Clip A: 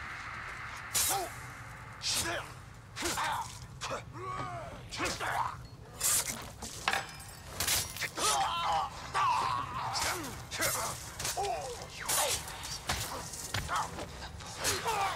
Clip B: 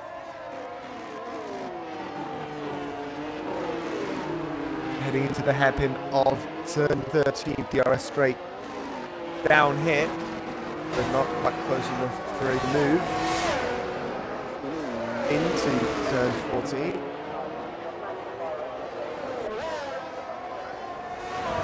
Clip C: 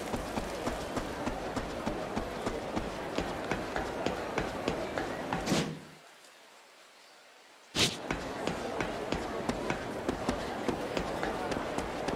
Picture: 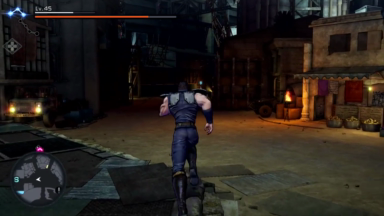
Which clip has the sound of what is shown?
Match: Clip C